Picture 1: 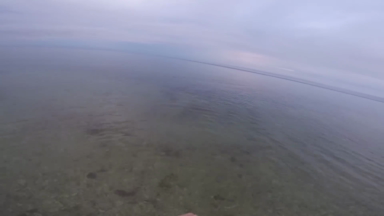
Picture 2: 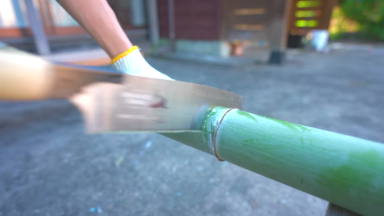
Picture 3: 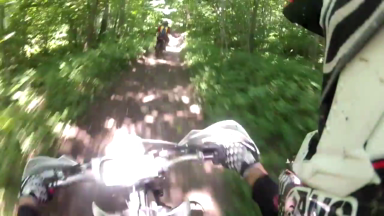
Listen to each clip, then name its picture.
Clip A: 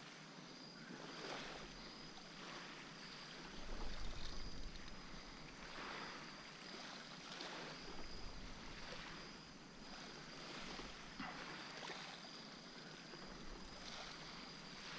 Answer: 1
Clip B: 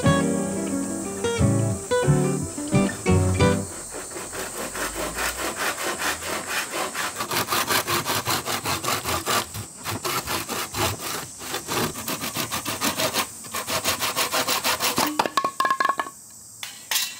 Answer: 2